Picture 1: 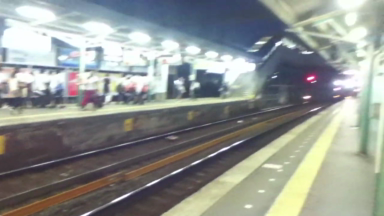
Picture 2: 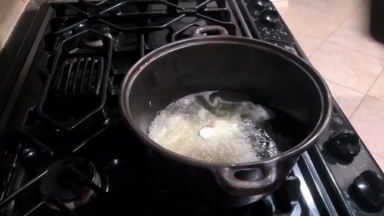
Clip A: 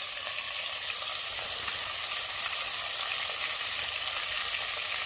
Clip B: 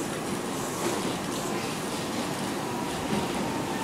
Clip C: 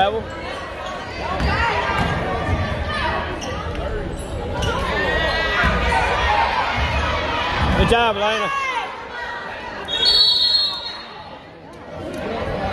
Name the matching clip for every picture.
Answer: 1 B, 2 A